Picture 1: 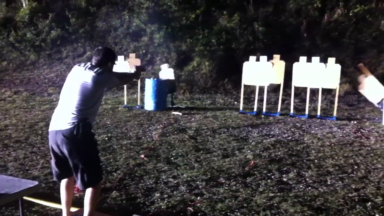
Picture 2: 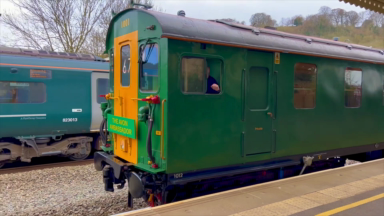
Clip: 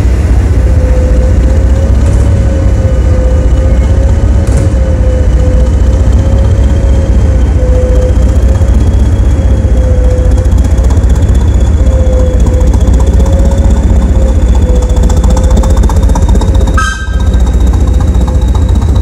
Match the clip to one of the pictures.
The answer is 2